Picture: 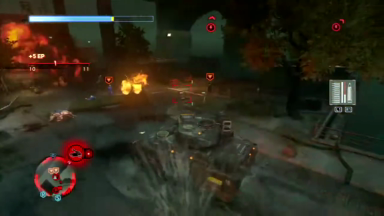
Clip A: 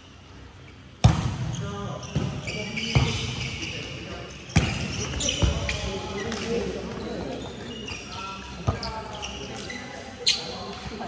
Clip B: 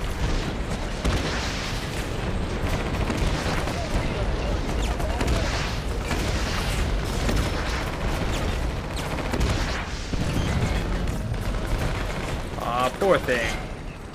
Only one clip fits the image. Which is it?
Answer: B